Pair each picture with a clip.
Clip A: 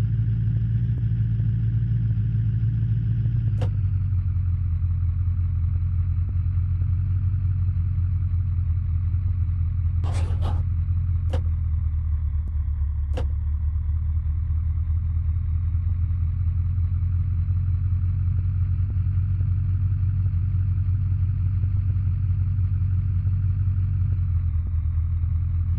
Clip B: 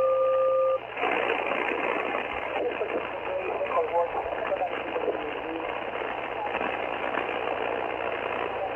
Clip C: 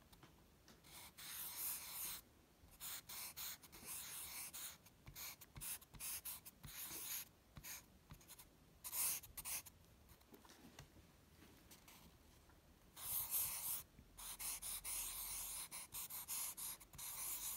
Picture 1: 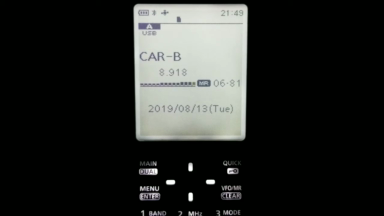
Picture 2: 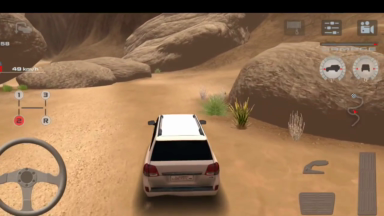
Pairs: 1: B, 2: A